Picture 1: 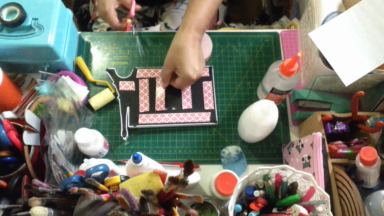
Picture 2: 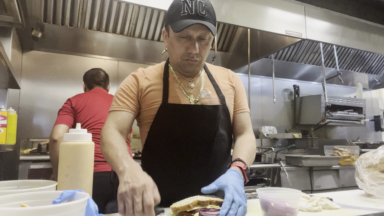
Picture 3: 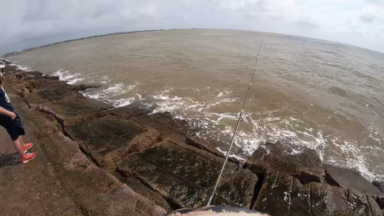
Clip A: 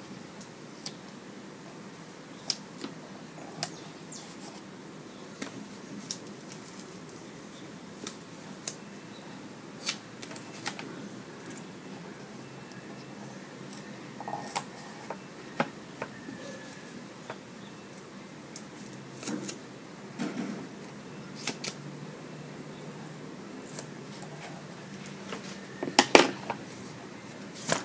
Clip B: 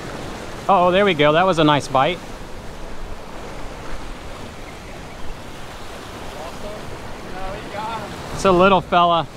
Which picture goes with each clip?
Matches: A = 1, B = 3